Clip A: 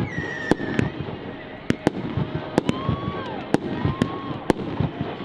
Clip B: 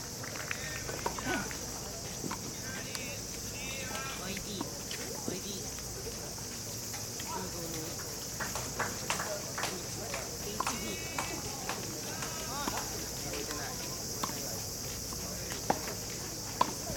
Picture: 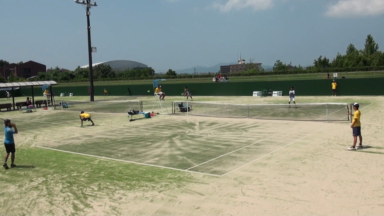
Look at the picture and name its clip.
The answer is B